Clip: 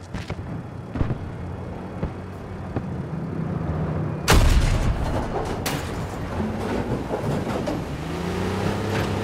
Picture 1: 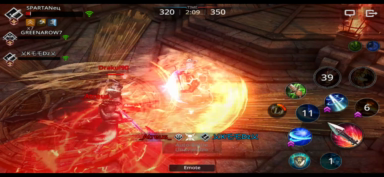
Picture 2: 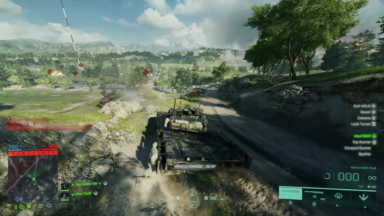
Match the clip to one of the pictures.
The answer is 2